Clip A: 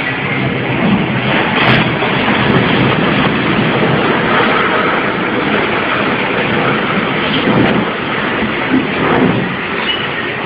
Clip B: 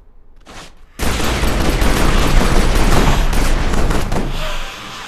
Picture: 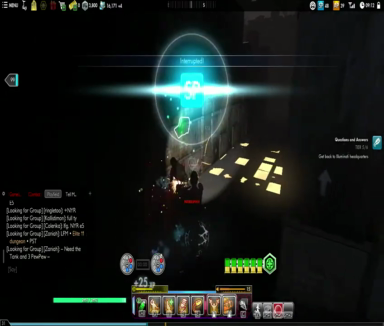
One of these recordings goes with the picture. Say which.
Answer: B